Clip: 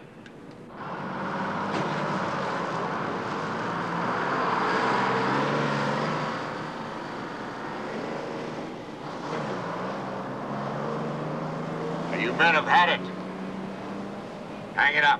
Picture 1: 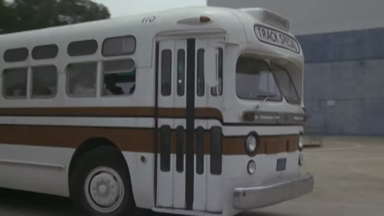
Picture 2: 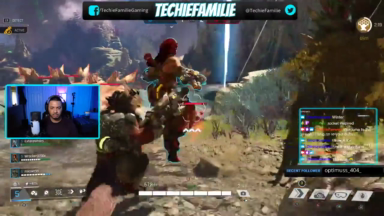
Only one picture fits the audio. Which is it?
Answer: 1